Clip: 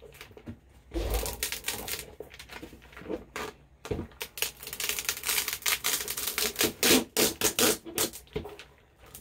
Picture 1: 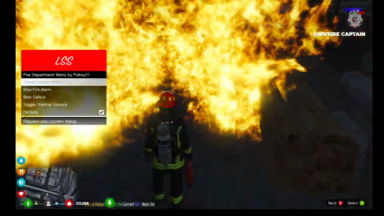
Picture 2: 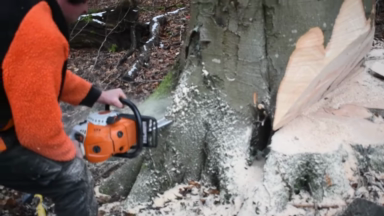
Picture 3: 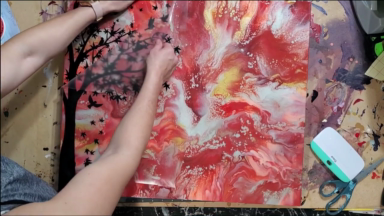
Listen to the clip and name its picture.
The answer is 3